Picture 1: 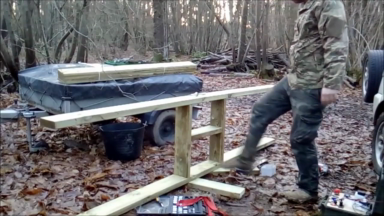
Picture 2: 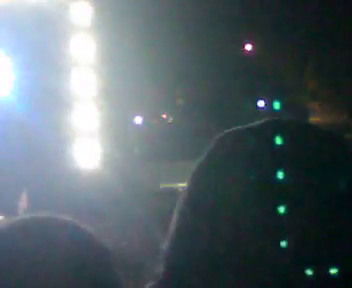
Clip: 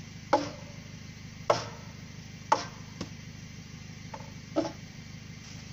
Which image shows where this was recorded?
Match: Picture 1